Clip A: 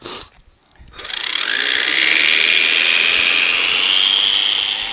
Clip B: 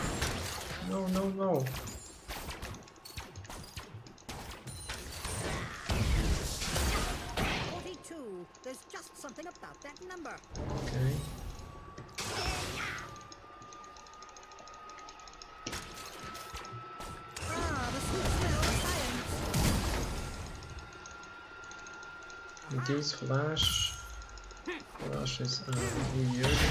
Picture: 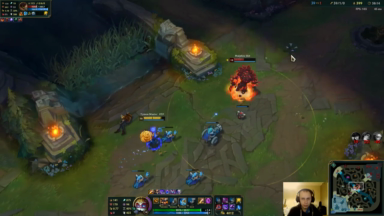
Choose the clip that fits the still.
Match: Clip B